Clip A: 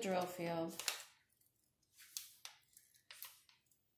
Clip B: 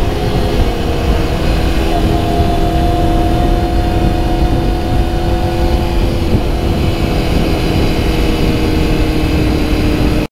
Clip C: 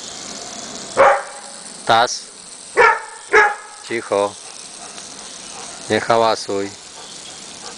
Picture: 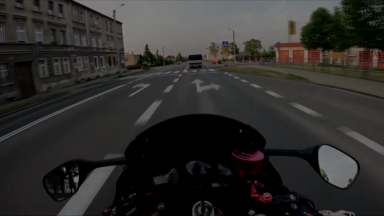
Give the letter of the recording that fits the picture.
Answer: B